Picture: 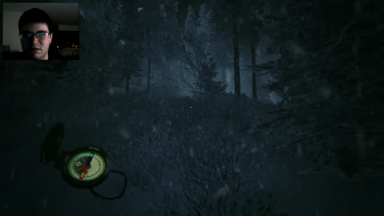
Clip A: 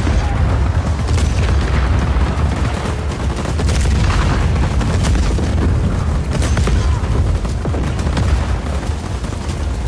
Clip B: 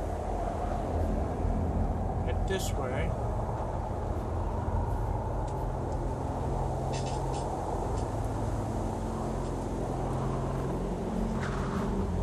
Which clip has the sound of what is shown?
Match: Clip B